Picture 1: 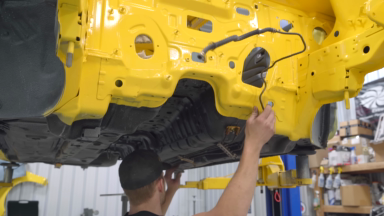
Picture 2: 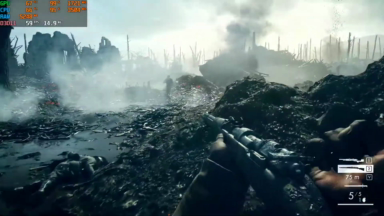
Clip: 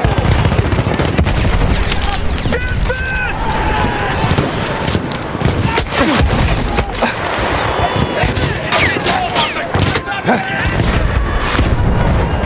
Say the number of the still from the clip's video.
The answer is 2